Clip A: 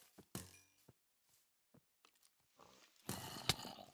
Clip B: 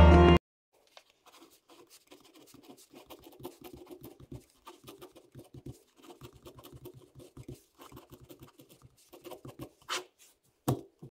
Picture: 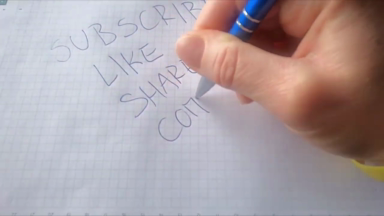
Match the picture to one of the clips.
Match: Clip B